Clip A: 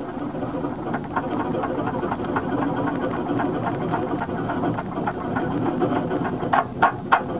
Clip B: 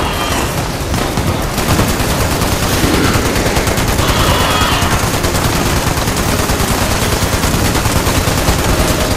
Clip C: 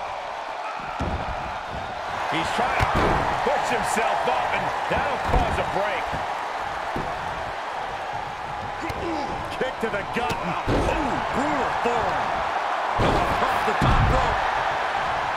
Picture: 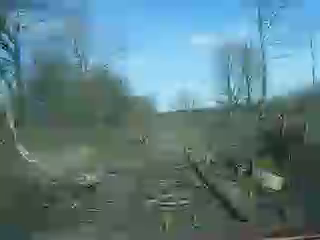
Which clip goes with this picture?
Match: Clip A